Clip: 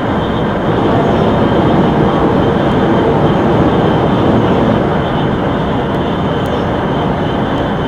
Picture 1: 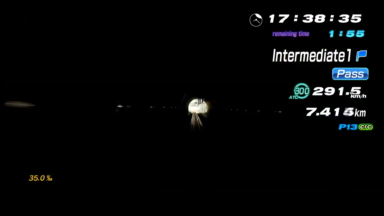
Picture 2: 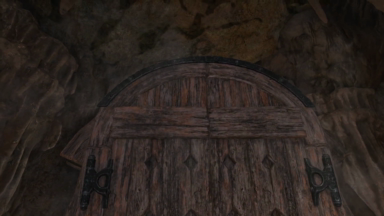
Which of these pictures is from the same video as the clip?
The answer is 1